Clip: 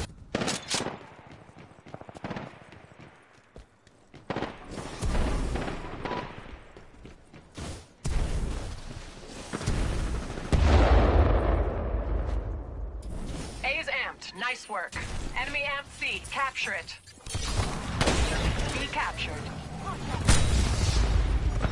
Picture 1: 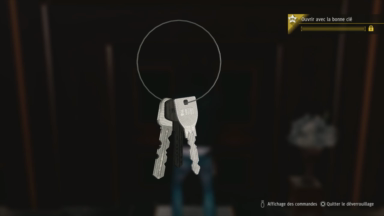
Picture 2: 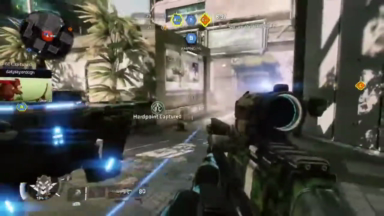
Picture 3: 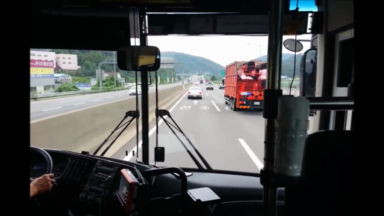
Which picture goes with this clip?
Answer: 2